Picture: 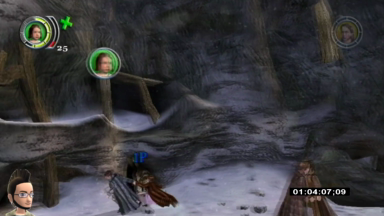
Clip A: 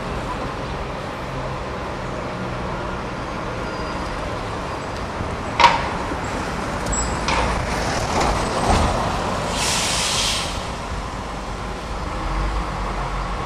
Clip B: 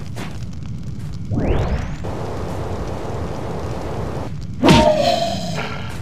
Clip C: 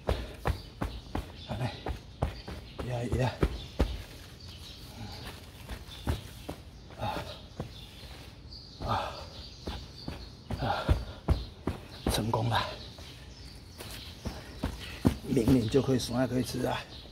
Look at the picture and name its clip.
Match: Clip B